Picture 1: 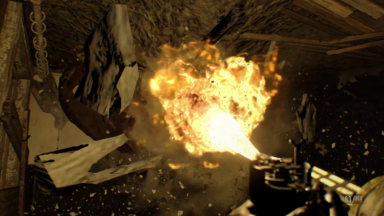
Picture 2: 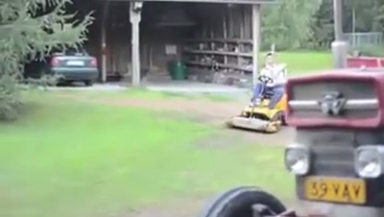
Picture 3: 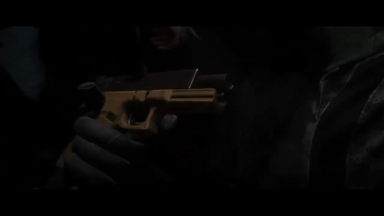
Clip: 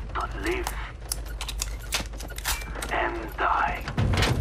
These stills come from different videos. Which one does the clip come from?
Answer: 3